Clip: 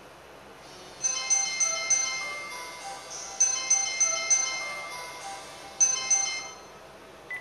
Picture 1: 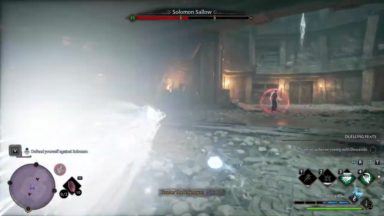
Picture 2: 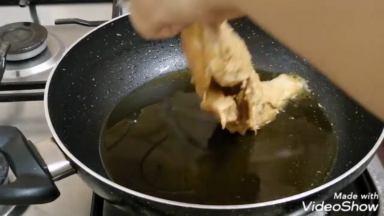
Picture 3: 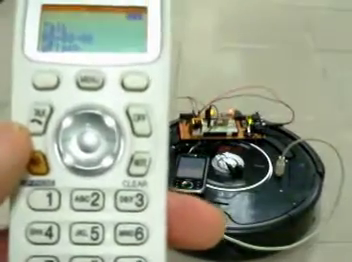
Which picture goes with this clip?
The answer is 3